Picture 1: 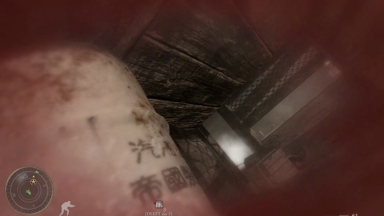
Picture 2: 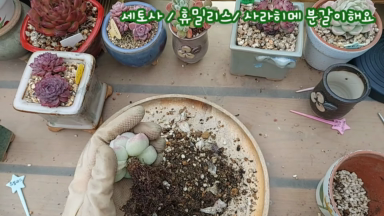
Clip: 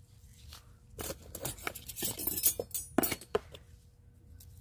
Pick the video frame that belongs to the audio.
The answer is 2